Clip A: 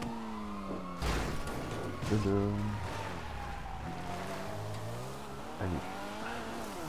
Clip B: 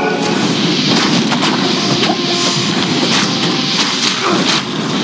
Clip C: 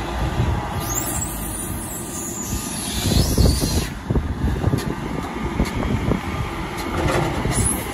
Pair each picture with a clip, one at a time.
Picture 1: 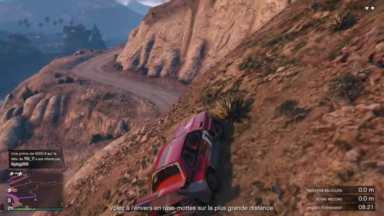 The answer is A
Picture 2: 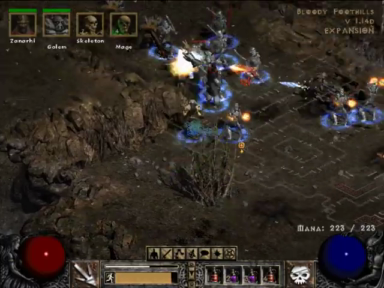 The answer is B